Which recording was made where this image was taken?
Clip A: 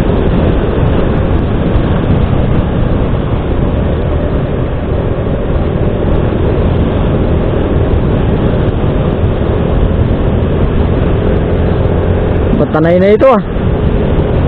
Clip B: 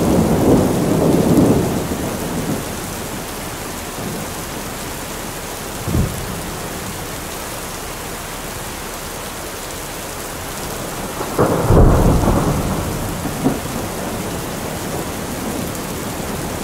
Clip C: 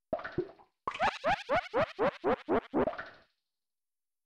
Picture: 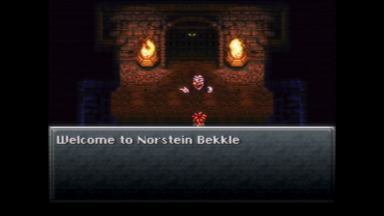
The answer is C